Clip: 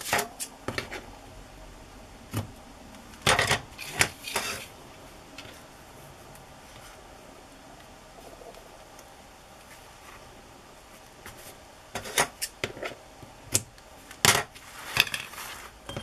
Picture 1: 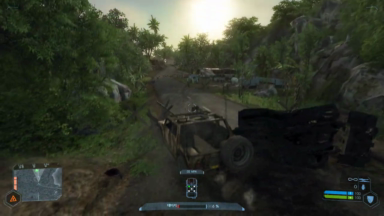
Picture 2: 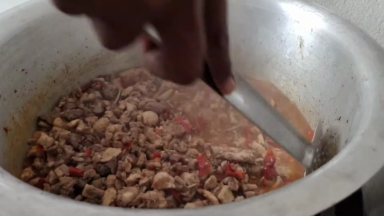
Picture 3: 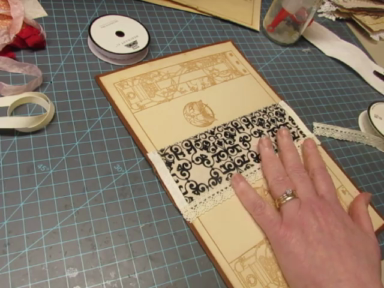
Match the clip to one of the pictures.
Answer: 3